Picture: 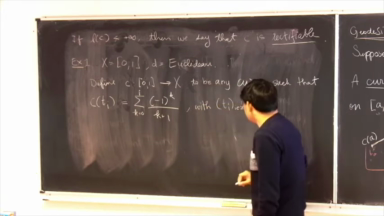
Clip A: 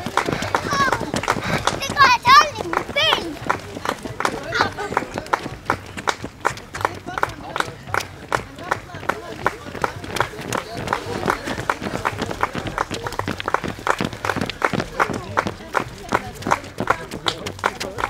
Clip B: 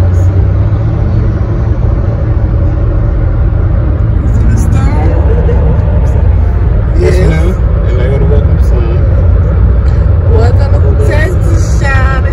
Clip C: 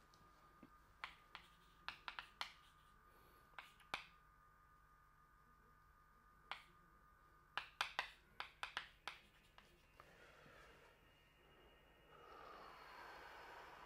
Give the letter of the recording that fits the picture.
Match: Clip C